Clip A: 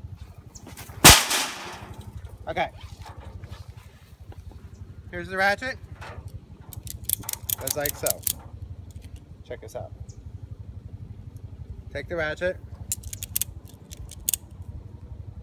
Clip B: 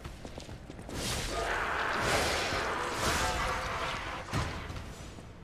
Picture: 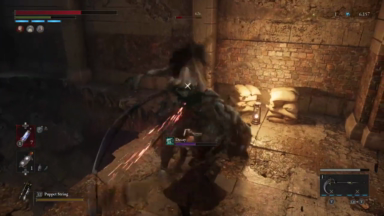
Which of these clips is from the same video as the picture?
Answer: B